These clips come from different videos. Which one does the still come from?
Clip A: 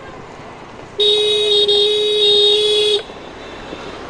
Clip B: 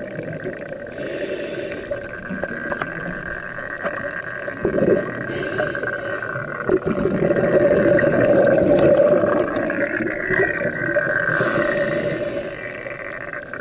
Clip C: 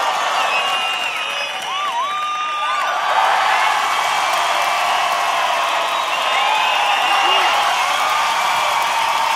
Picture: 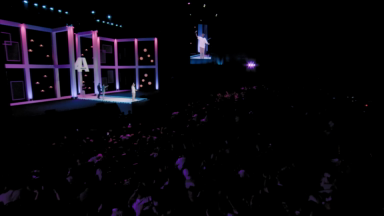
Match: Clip C